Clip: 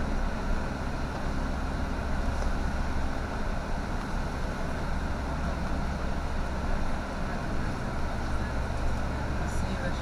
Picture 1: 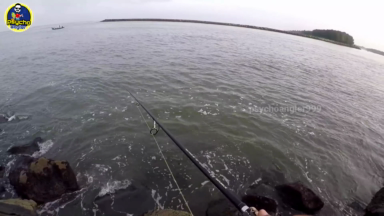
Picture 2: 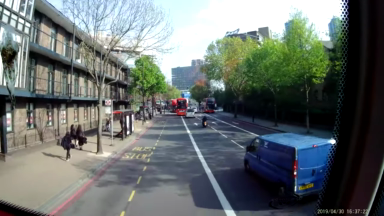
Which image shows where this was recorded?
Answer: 2